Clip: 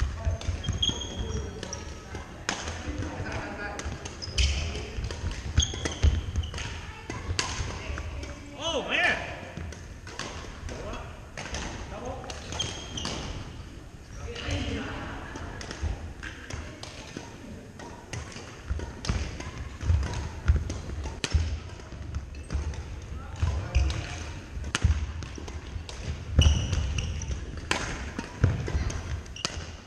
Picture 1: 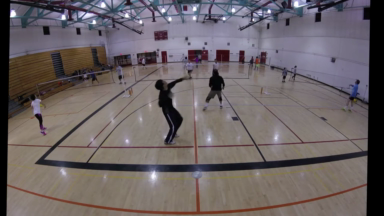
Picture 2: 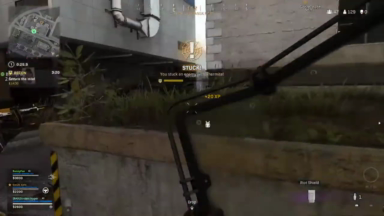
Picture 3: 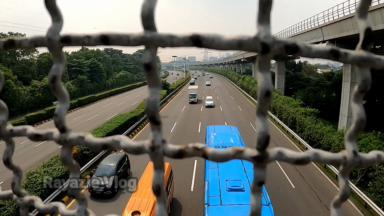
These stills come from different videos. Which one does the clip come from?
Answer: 1